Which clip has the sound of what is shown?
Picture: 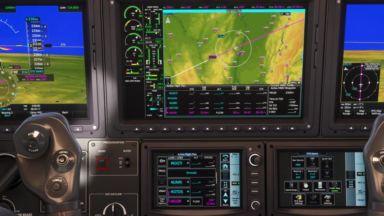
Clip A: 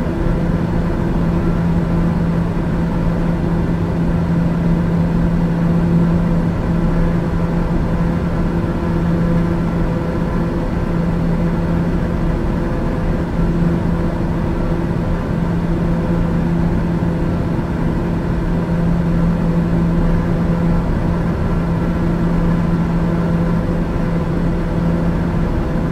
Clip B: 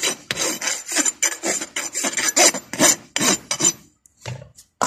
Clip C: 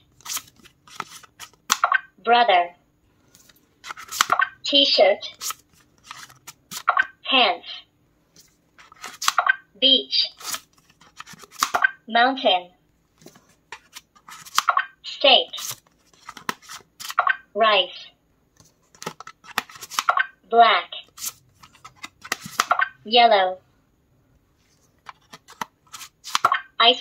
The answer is A